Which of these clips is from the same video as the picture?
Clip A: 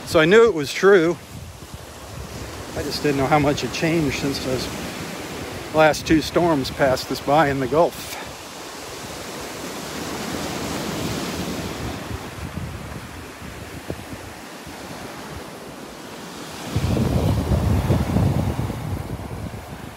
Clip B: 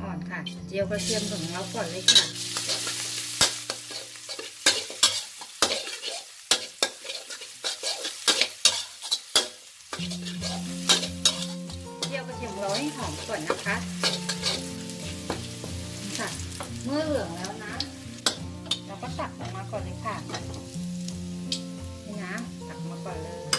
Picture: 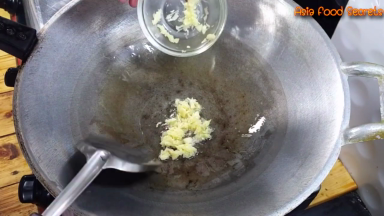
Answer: B